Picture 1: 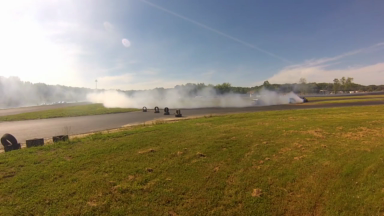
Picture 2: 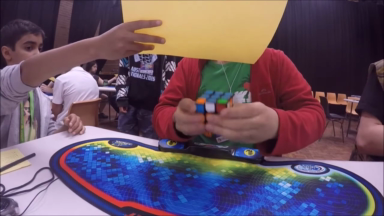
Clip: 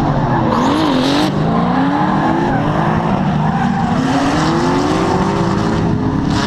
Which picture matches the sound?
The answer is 1